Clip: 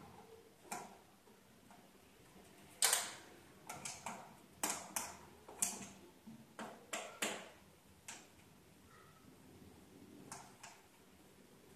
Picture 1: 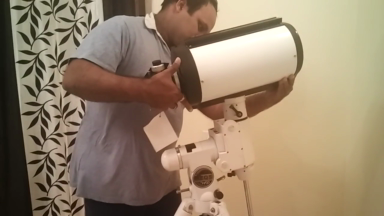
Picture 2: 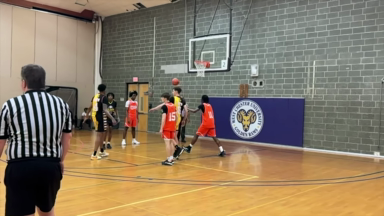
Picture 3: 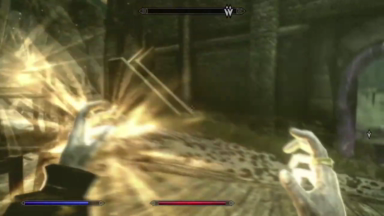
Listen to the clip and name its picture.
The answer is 1